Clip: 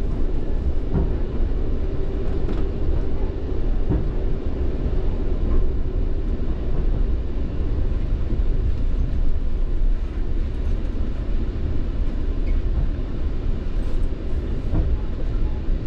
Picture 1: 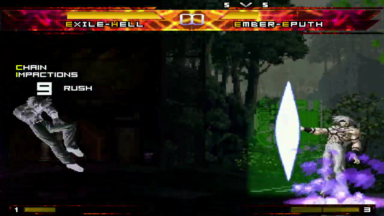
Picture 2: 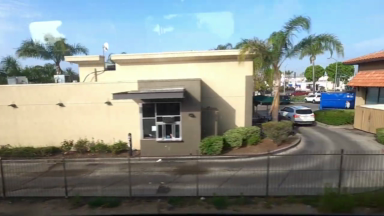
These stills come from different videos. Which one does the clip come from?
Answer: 2